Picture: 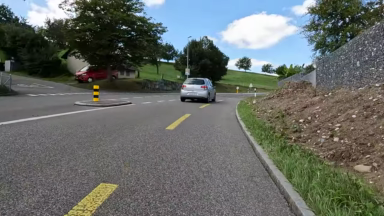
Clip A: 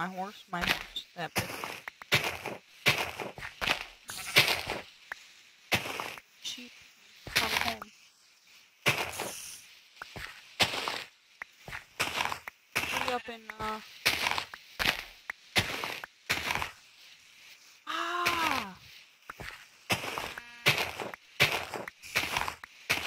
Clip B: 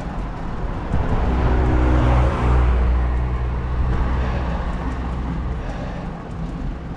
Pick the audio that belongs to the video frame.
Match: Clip B